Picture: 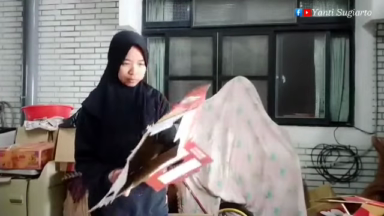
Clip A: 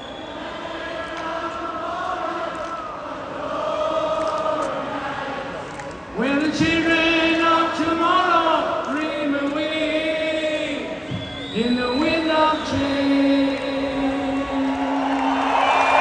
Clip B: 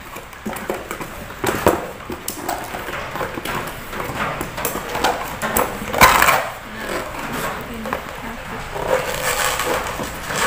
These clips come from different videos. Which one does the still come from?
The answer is B